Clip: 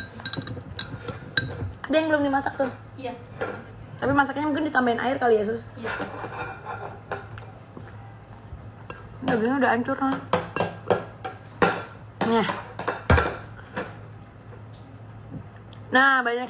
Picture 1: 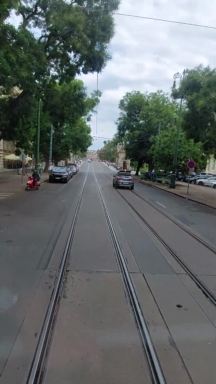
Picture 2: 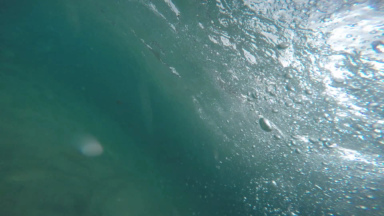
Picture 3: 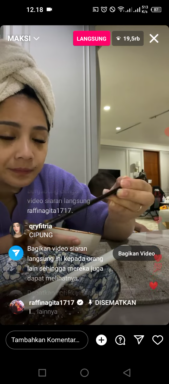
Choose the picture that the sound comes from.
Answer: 3